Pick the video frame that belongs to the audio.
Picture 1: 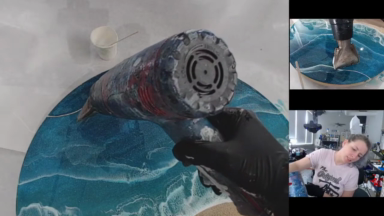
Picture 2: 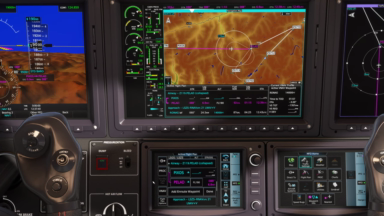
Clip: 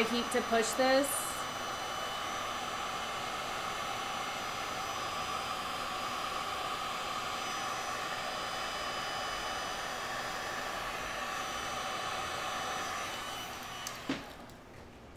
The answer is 1